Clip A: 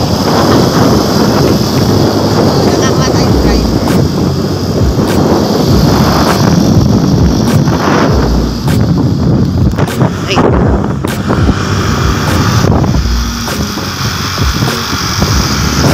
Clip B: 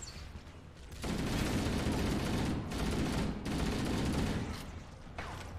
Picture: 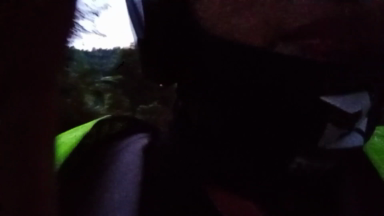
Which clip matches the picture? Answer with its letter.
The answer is A